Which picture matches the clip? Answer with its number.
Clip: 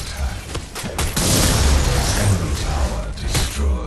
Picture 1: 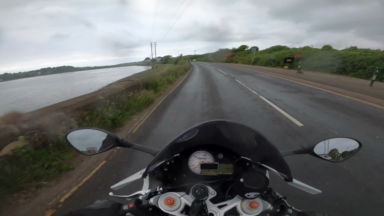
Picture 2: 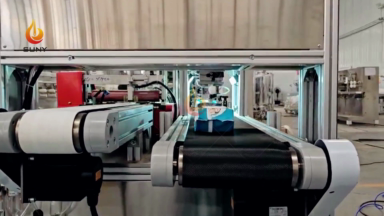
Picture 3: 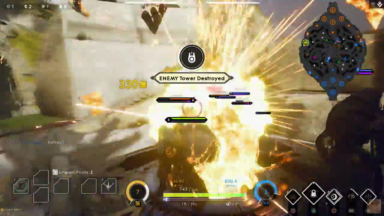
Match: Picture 3